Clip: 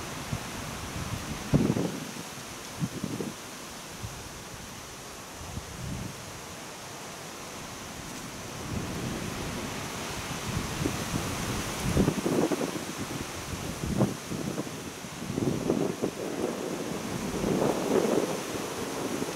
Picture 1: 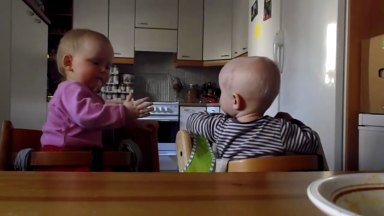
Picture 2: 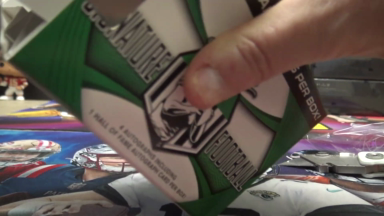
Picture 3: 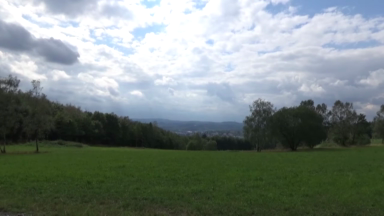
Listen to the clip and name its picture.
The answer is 3